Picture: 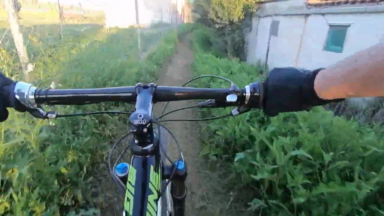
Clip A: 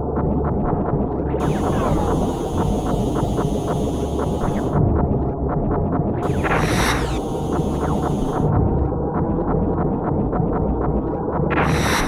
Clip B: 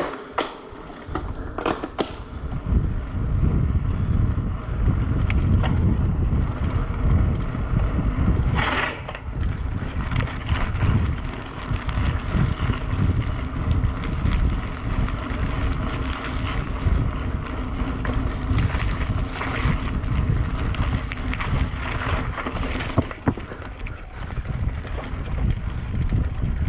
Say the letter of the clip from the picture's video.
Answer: B